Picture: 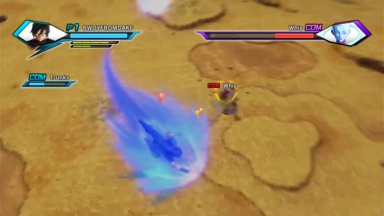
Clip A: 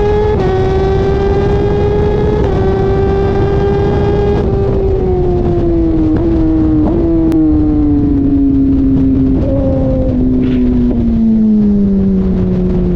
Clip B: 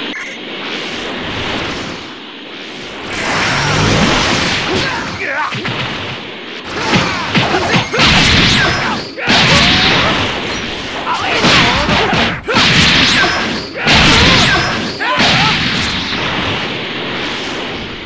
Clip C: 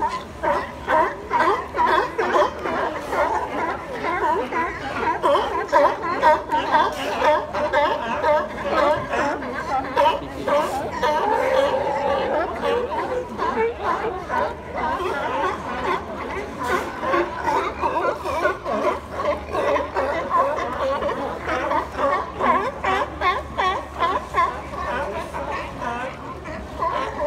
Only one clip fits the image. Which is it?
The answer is B